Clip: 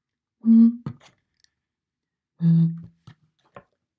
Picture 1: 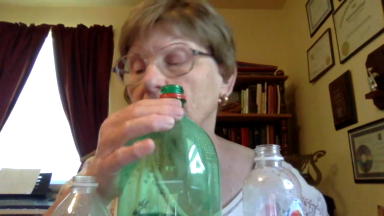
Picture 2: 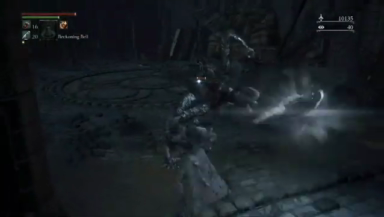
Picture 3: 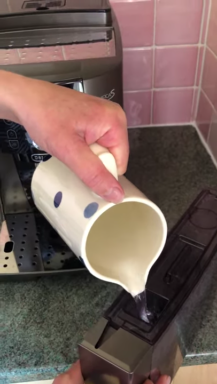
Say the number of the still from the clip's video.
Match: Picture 1